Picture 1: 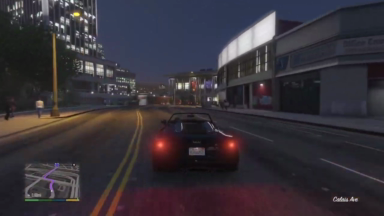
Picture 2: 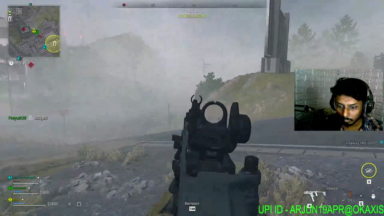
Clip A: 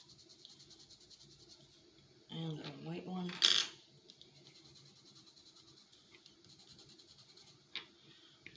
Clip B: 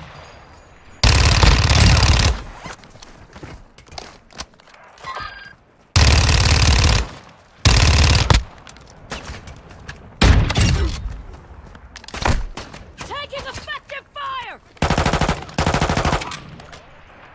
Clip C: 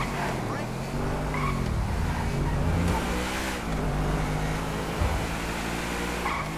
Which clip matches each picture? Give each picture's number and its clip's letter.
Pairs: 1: C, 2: B